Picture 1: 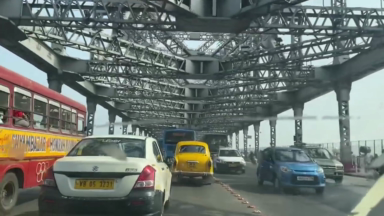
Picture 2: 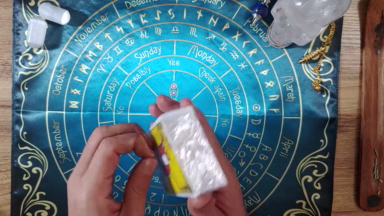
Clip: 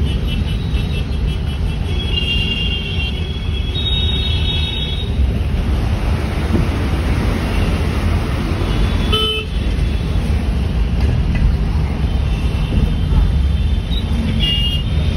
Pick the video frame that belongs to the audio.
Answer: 1